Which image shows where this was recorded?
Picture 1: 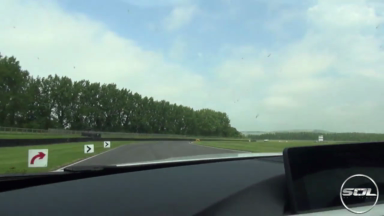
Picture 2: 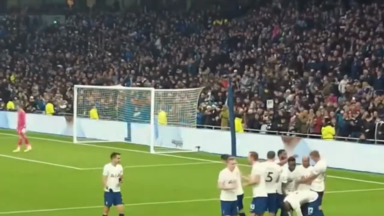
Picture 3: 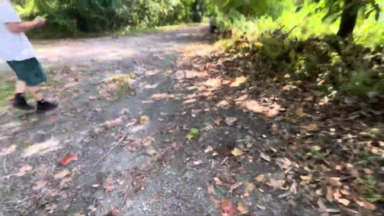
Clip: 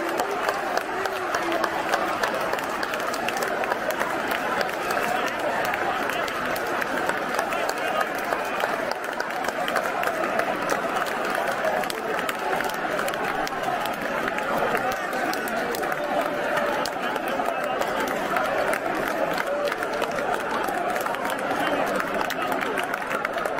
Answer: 2